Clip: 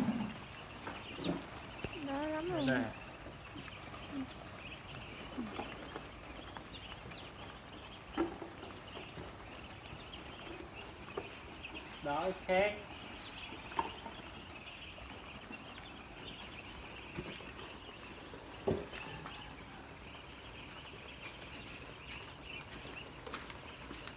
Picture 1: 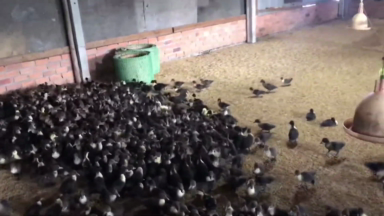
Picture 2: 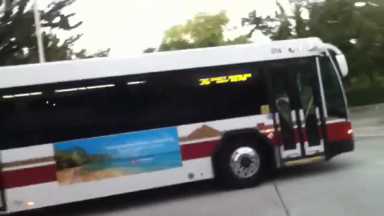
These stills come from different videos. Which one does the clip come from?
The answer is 1